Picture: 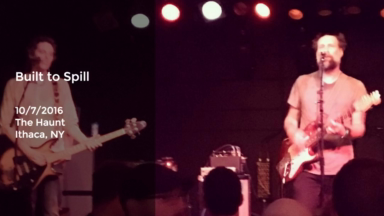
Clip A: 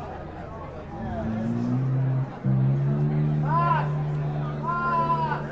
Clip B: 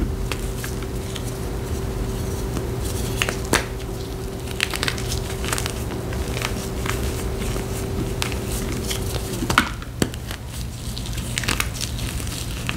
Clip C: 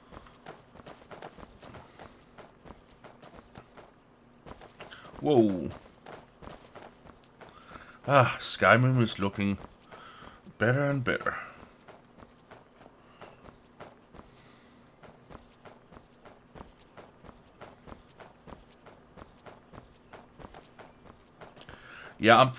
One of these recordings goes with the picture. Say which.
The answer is A